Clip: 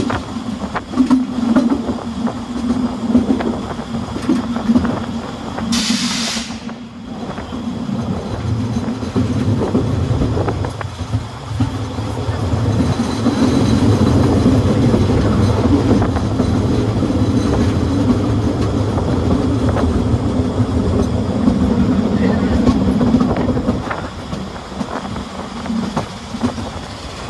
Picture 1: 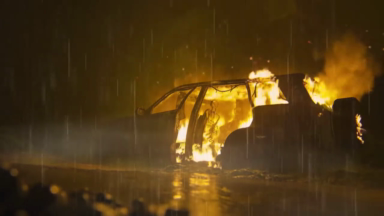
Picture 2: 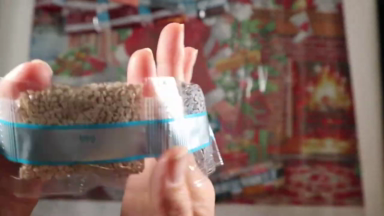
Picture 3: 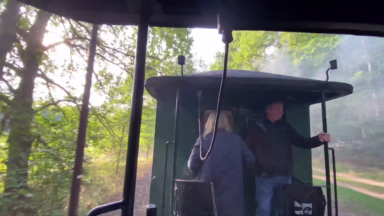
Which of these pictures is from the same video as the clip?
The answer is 3